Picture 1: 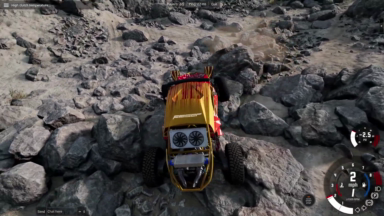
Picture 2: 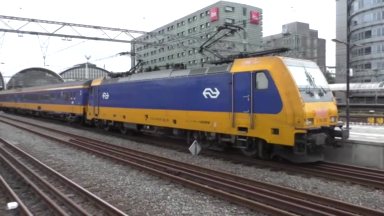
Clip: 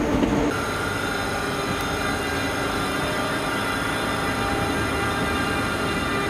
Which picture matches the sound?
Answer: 2